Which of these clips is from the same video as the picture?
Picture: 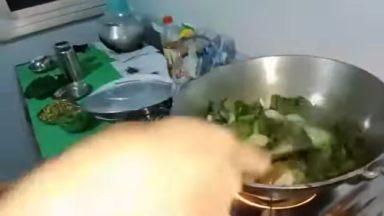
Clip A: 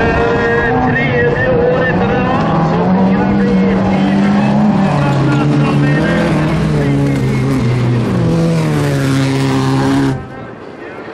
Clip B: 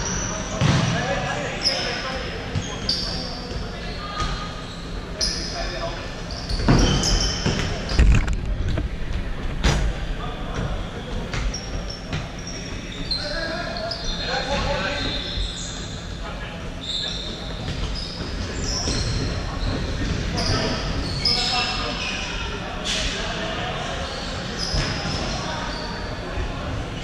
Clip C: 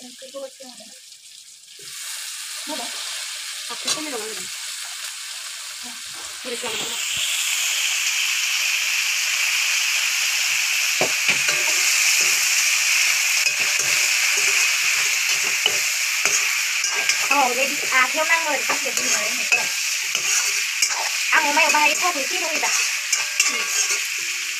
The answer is C